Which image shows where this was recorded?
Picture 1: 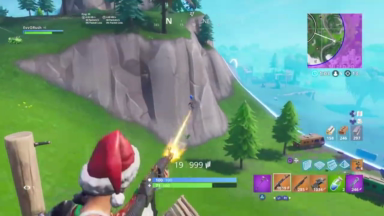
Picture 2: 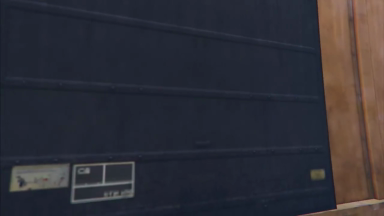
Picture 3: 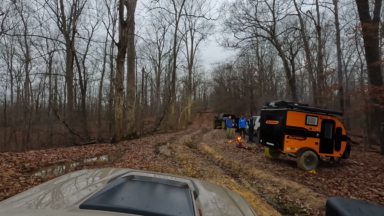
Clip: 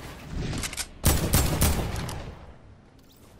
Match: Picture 1